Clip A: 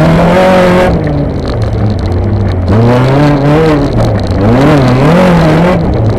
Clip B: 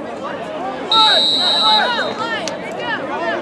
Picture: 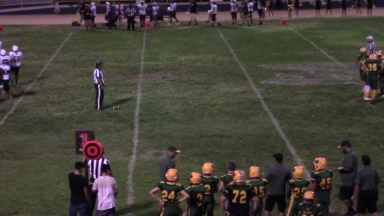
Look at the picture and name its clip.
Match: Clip B